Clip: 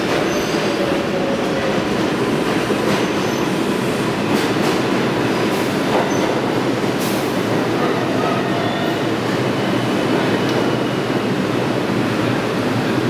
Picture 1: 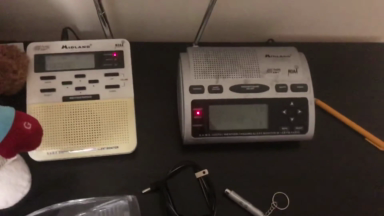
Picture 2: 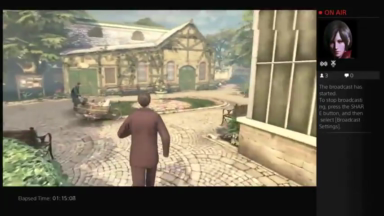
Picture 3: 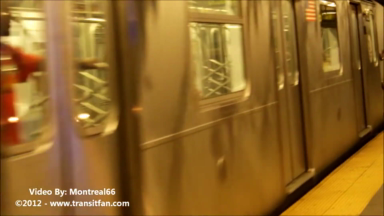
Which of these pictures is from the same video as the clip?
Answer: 3